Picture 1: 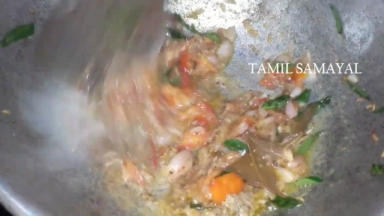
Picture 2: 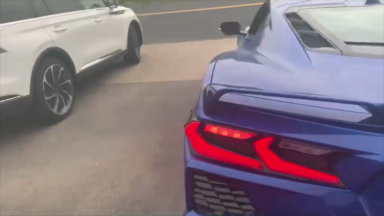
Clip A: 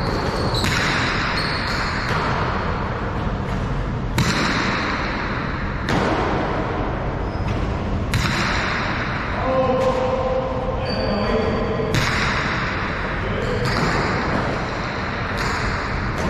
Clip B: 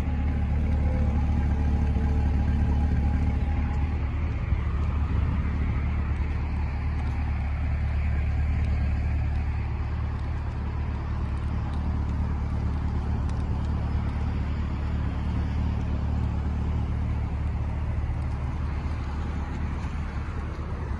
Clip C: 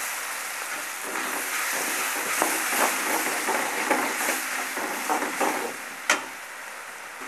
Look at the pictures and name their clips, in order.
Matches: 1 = C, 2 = B